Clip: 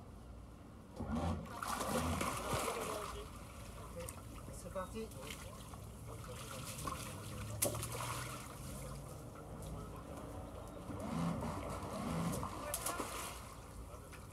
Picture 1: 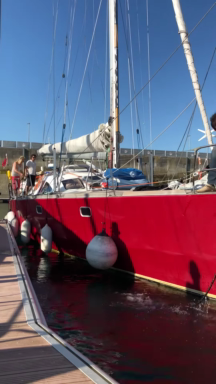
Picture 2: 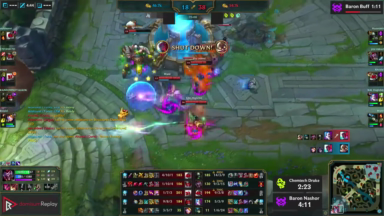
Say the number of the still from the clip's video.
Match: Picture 1